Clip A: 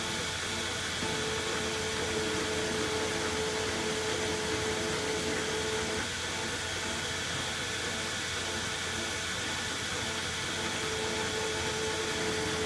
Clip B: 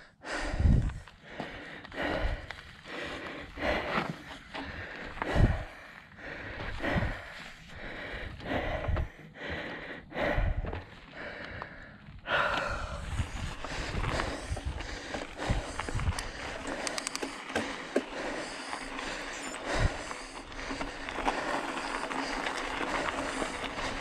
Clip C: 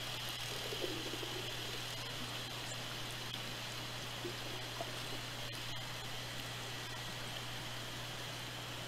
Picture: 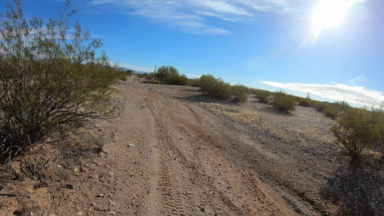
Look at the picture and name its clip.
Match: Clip B